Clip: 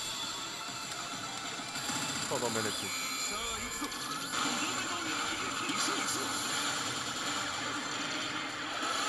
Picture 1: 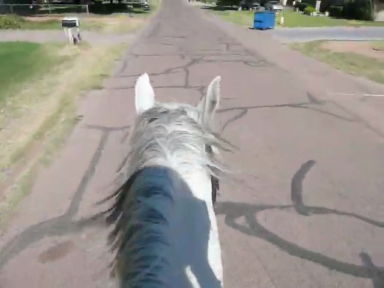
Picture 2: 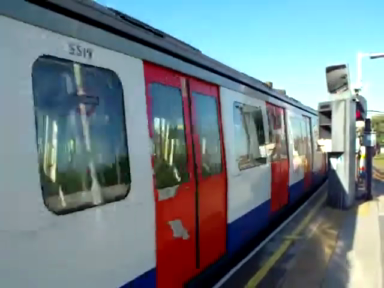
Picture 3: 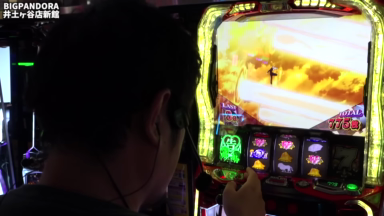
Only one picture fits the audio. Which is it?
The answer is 3